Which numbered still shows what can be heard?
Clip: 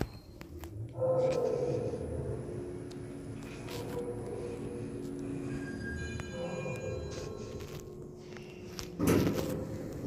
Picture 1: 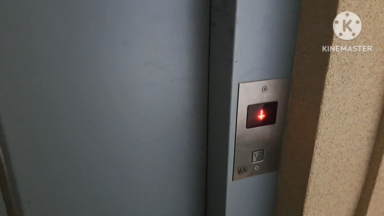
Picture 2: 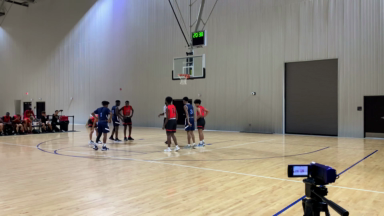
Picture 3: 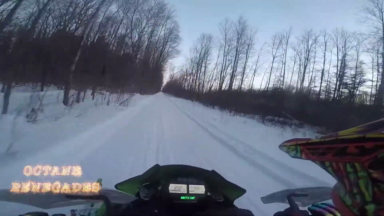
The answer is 1